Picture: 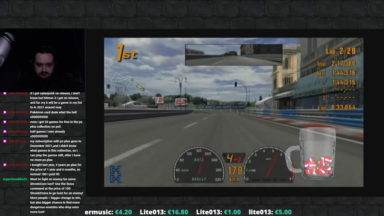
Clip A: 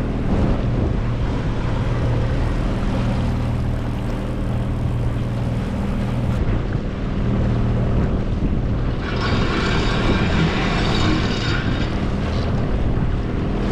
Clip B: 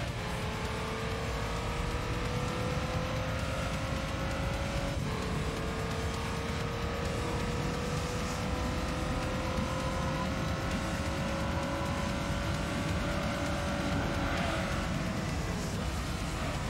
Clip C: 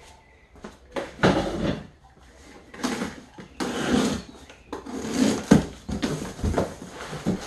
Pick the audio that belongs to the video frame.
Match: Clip B